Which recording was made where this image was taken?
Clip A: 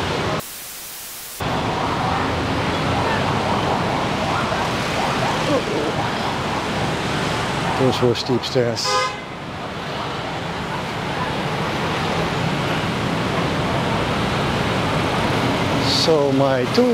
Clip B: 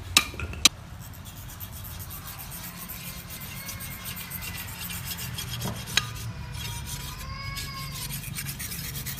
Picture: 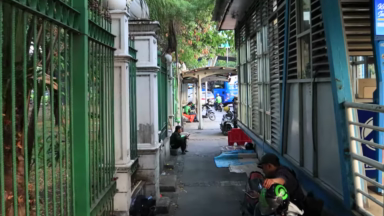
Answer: A